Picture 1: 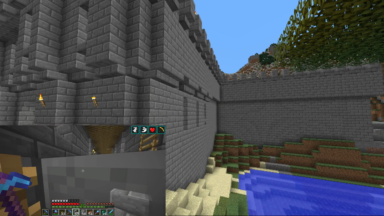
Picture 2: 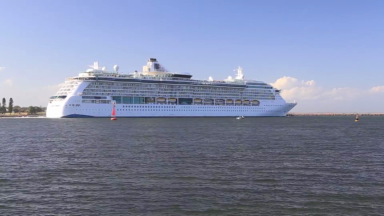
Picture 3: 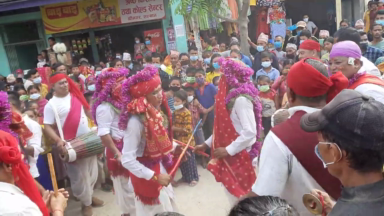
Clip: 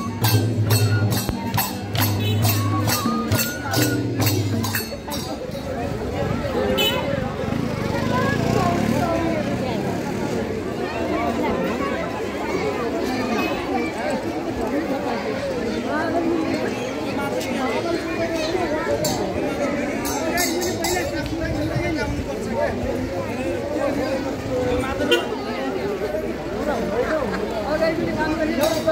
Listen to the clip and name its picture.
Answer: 3